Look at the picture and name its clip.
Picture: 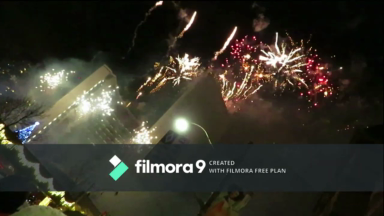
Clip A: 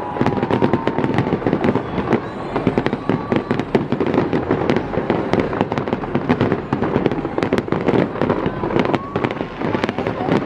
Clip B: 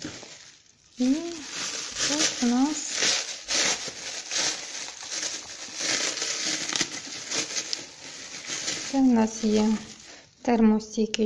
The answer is A